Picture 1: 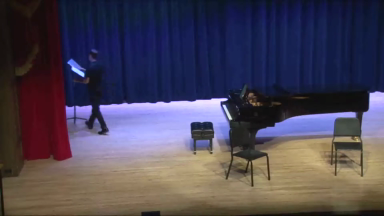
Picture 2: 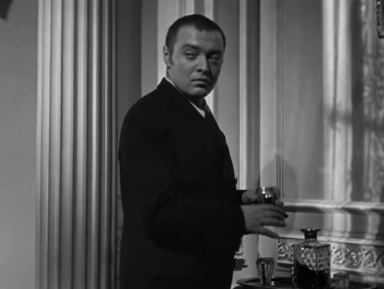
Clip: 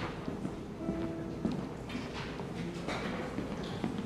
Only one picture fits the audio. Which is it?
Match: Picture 1